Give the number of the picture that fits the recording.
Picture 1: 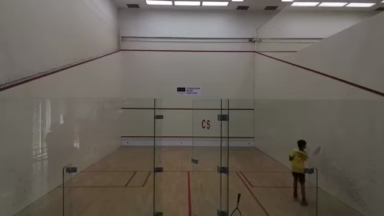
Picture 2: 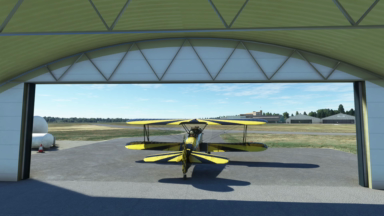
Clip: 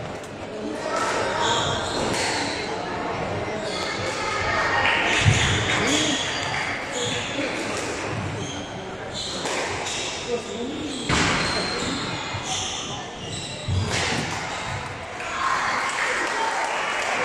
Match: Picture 1